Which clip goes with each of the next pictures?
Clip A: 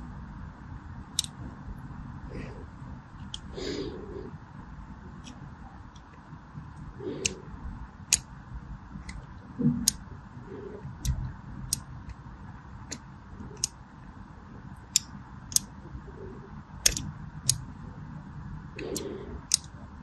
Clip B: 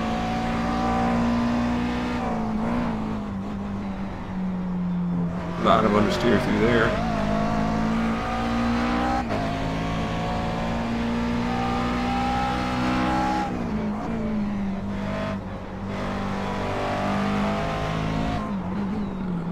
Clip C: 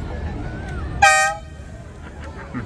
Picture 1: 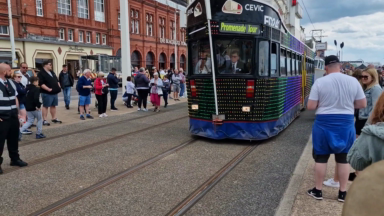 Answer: C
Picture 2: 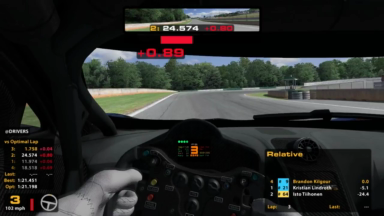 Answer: B